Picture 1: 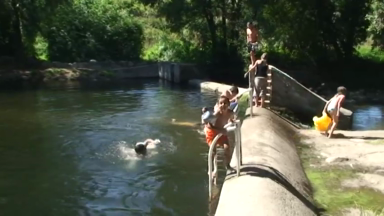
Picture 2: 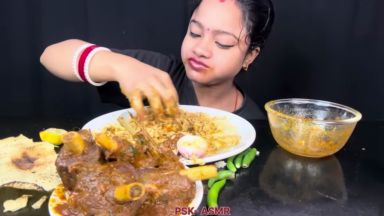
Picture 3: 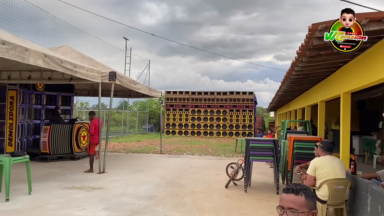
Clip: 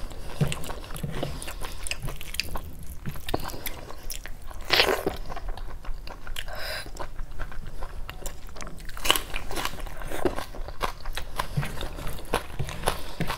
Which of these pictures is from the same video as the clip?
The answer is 2